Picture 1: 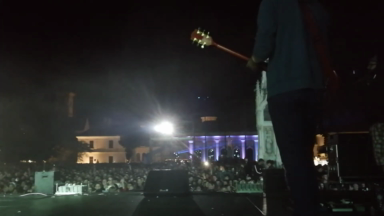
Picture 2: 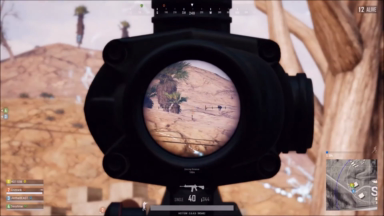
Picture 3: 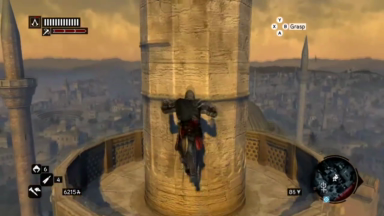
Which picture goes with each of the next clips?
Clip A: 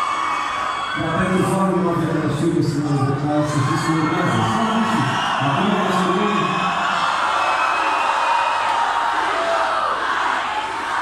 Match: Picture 1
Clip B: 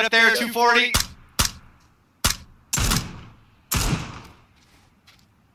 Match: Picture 2